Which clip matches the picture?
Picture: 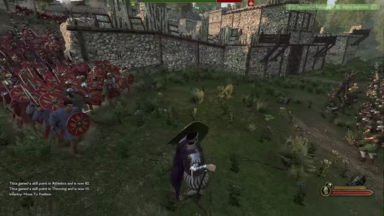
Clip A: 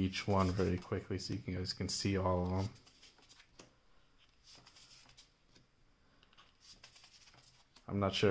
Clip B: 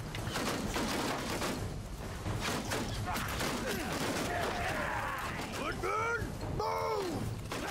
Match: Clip B